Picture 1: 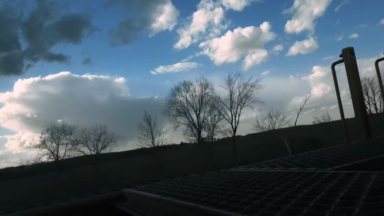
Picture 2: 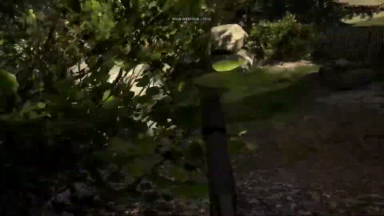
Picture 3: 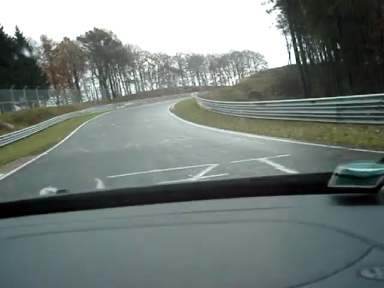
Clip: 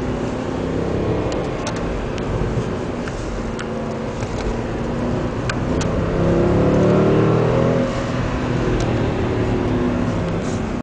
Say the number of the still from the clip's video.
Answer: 3